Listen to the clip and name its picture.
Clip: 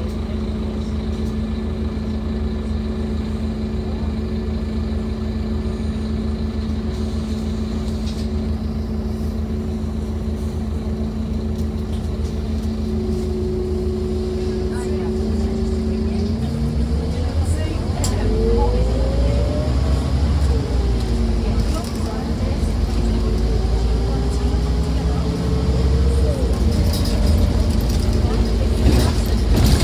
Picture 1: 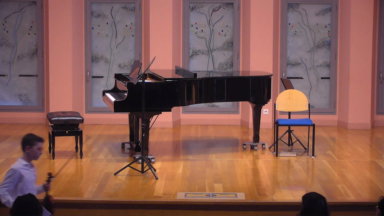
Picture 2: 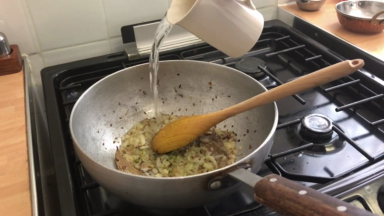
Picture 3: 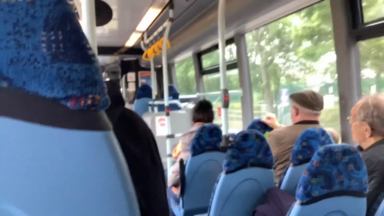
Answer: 3